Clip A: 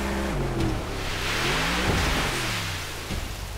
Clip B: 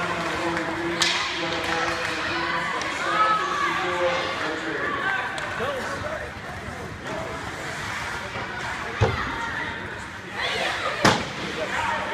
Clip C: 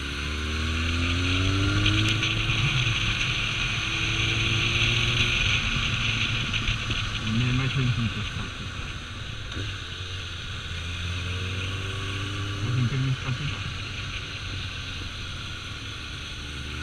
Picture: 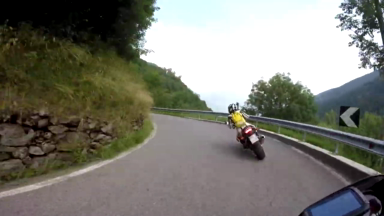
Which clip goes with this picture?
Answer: C